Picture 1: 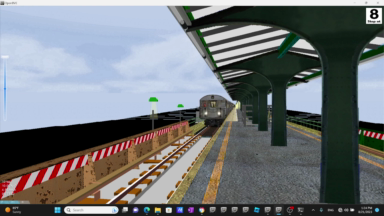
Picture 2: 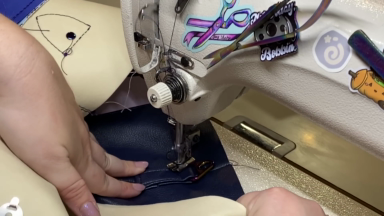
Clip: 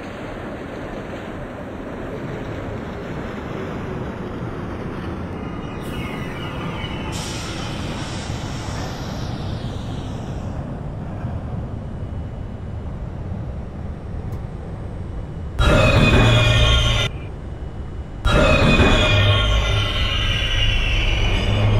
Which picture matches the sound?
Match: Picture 1